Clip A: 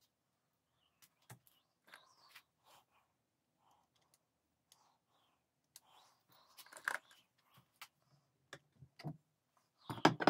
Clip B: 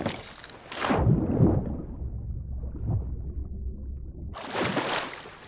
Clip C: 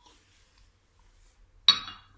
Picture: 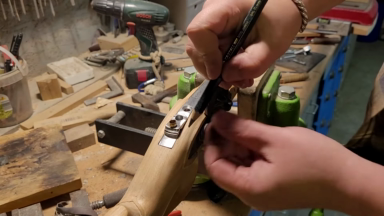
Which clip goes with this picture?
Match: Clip A